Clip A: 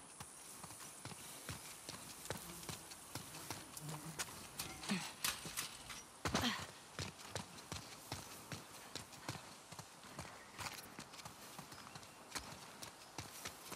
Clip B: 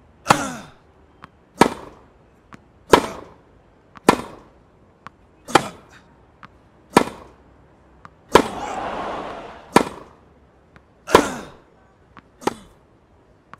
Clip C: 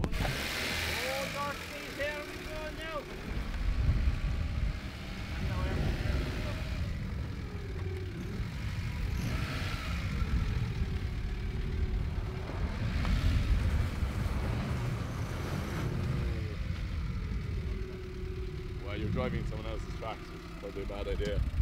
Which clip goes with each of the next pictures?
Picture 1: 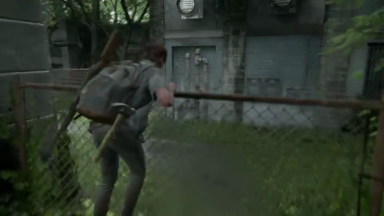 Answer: A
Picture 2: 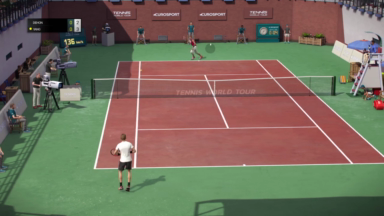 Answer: B